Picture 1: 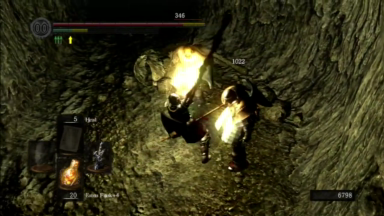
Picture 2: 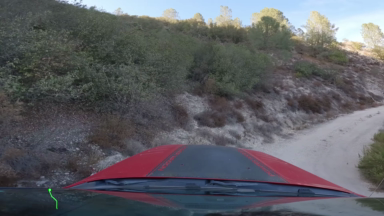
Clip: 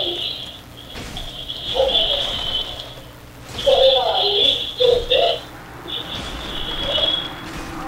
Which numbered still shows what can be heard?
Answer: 1